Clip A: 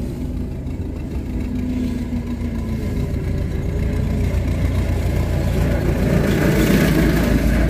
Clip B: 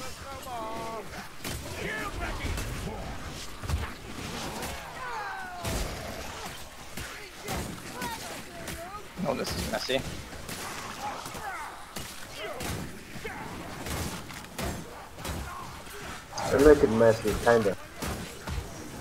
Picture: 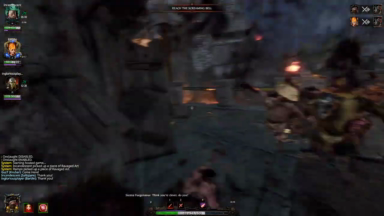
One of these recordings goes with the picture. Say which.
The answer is B